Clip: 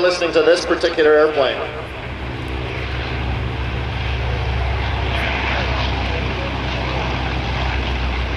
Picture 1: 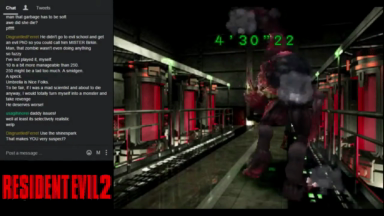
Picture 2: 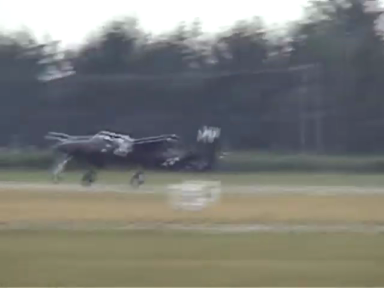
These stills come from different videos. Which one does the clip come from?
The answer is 2